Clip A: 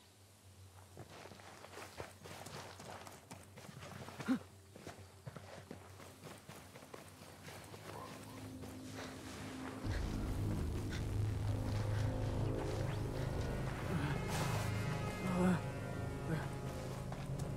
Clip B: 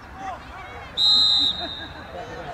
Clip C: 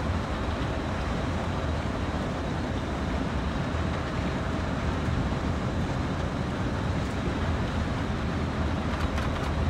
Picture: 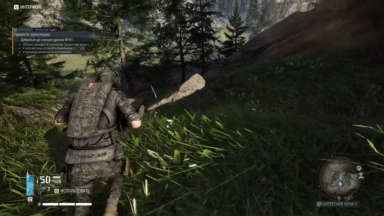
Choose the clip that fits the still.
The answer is A